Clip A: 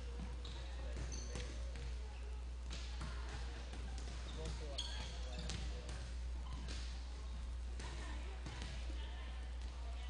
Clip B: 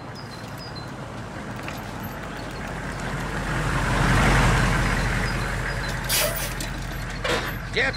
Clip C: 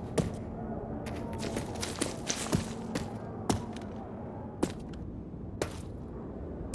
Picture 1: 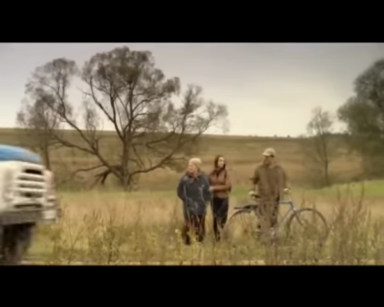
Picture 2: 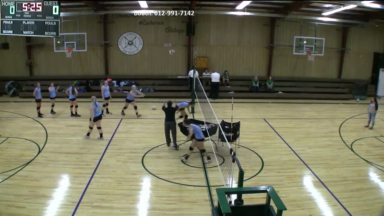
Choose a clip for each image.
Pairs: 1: B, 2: A